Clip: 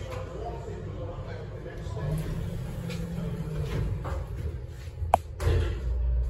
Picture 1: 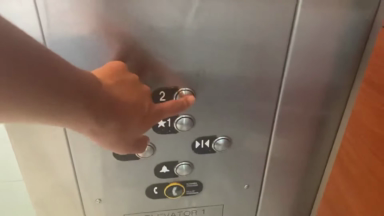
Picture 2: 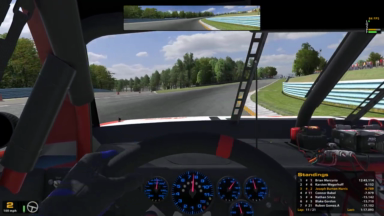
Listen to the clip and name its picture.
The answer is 1